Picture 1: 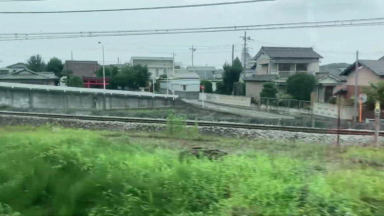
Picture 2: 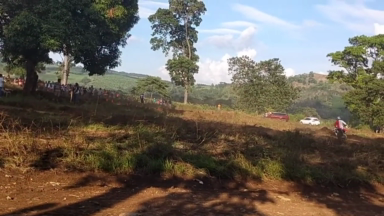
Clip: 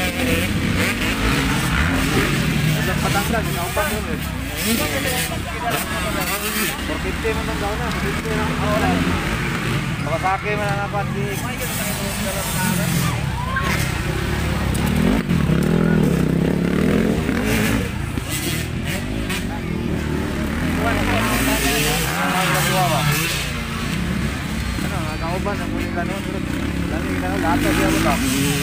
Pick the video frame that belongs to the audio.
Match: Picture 2